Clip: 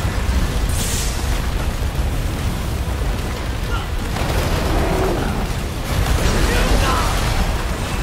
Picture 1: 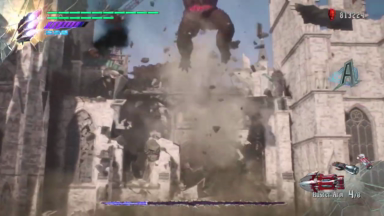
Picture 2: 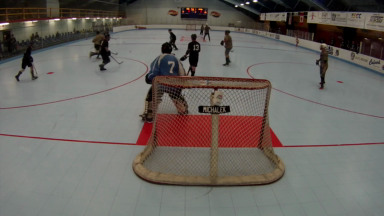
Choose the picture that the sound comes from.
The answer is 1